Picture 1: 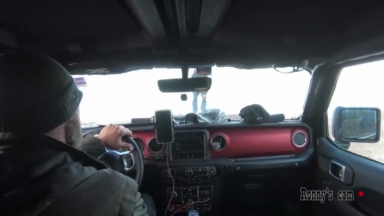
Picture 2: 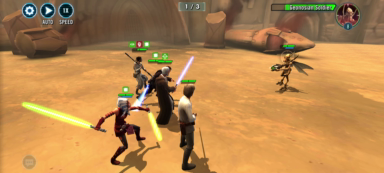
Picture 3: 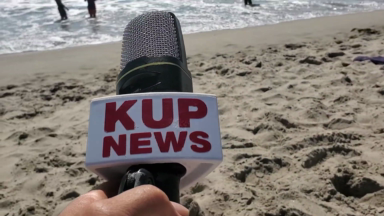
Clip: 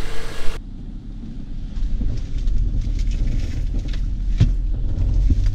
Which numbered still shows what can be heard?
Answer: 1